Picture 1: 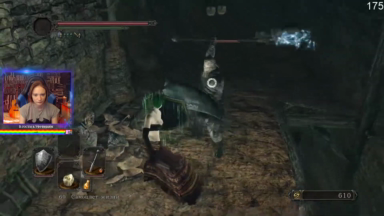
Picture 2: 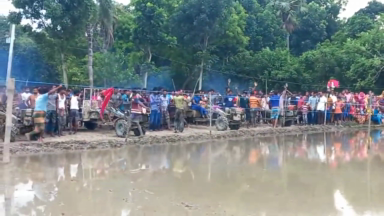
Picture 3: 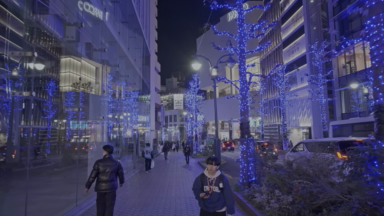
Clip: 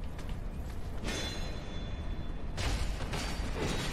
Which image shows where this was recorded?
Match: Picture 1